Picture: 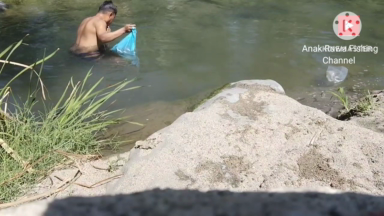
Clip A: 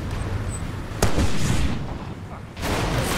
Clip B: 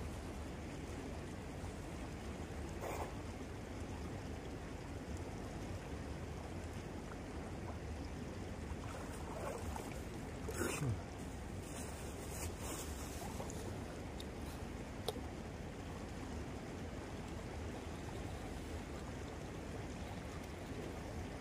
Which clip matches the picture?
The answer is B